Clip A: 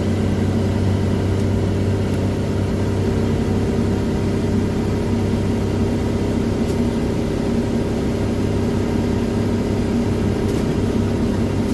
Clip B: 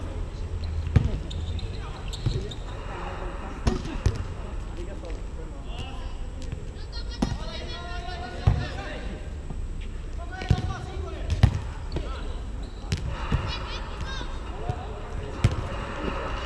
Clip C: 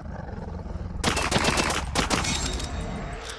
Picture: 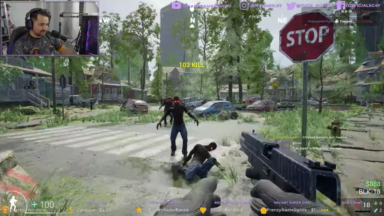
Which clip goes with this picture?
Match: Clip C